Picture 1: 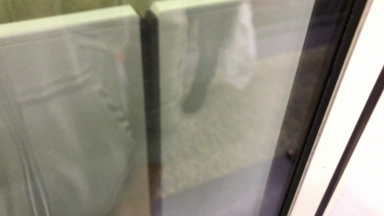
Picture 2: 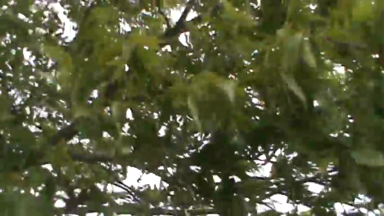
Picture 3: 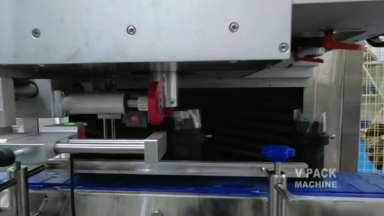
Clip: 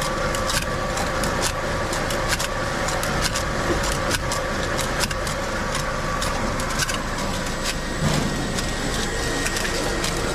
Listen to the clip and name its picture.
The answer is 3